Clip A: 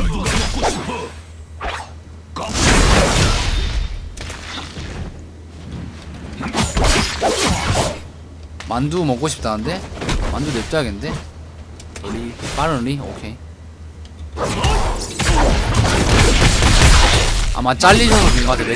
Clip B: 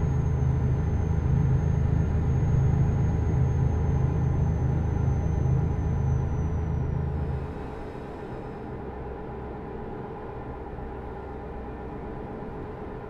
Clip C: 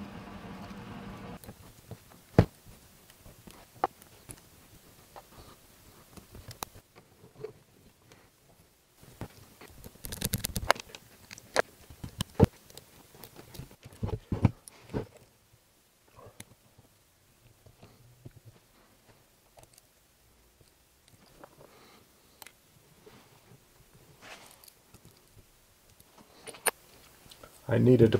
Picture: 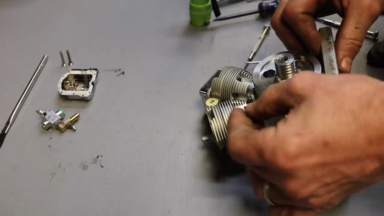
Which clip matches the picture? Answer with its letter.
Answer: C